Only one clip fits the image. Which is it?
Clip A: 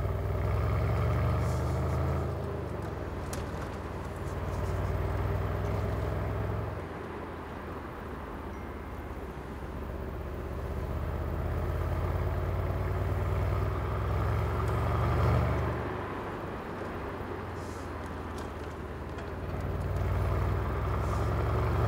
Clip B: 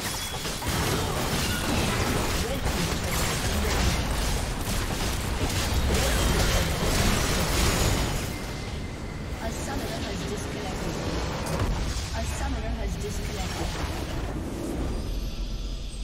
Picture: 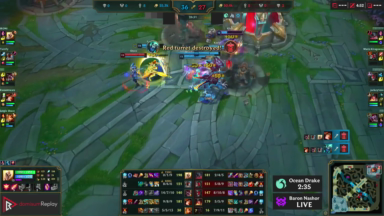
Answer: B